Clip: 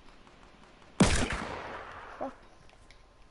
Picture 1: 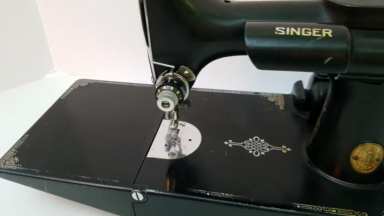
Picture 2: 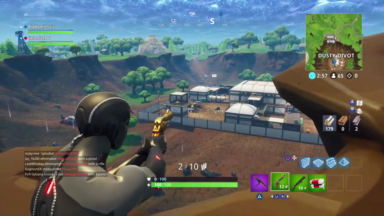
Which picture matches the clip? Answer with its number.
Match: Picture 2